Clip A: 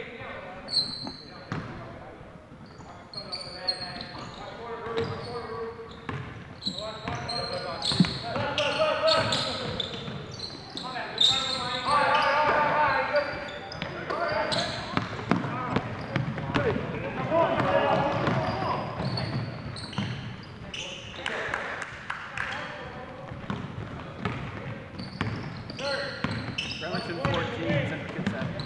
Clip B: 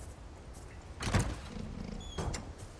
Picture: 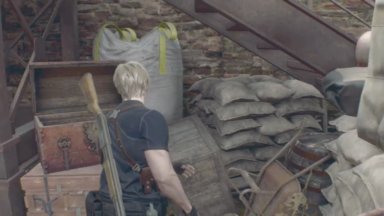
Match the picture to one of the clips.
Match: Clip B